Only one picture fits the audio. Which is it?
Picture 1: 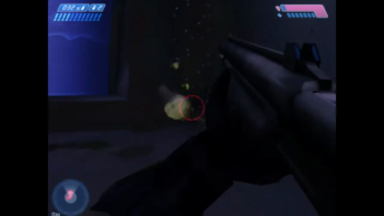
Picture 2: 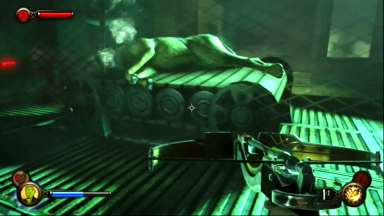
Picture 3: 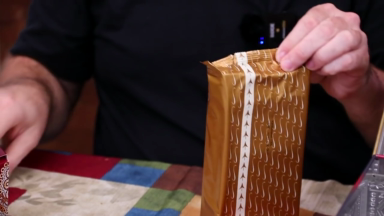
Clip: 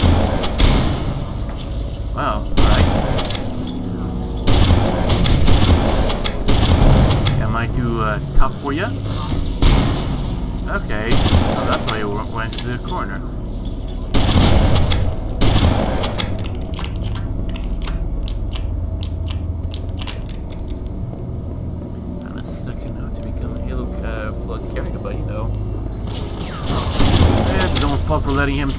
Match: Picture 1